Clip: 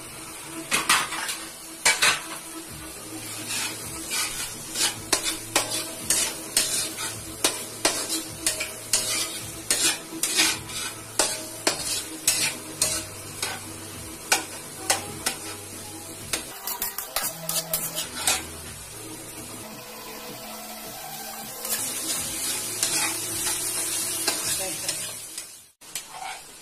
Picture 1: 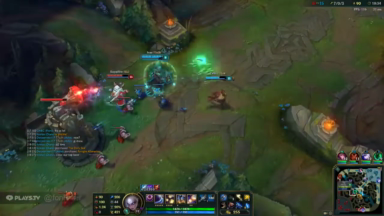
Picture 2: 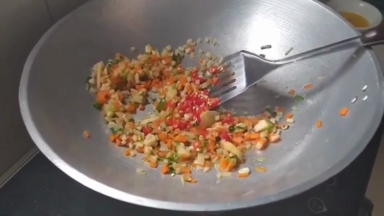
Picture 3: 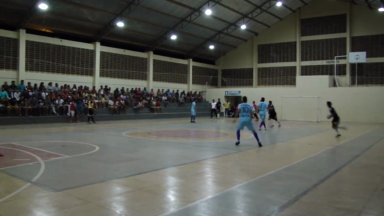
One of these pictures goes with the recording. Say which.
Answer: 2